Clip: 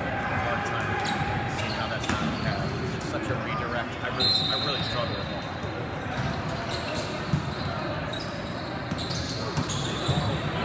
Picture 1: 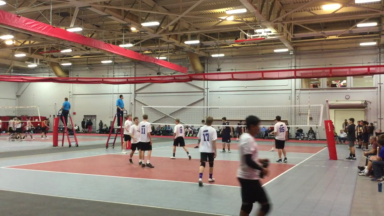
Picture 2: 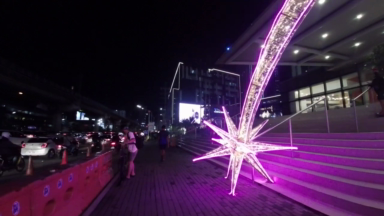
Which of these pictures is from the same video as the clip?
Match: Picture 1